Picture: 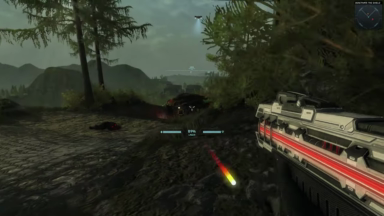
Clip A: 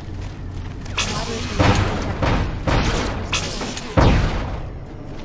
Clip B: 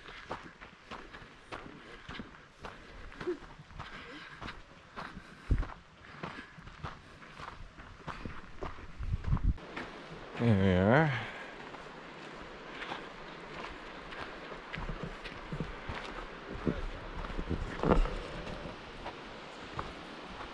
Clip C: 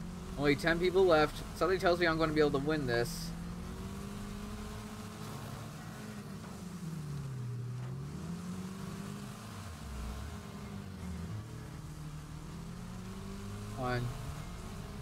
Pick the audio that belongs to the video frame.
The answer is A